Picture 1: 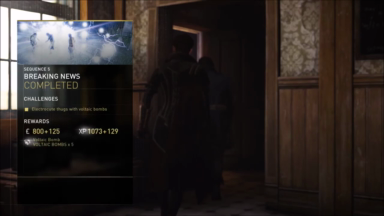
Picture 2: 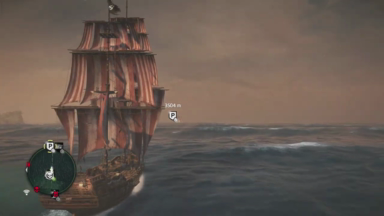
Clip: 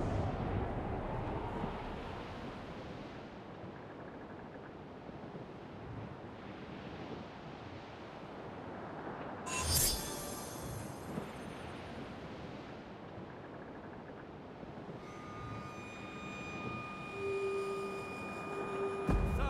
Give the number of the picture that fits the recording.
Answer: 2